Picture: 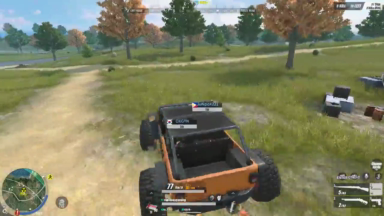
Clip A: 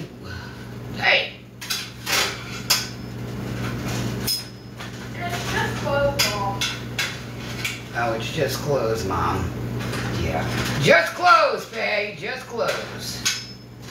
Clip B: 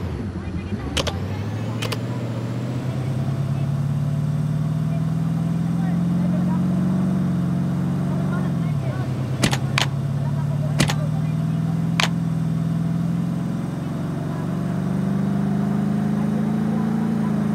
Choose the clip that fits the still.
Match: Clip B